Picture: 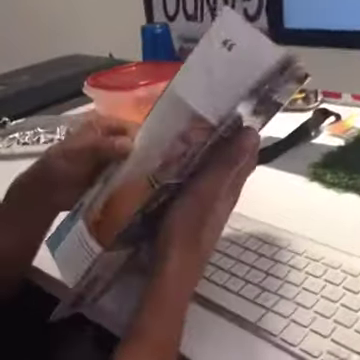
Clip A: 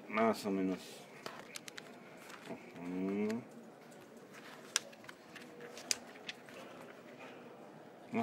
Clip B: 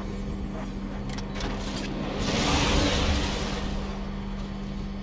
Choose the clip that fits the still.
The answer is A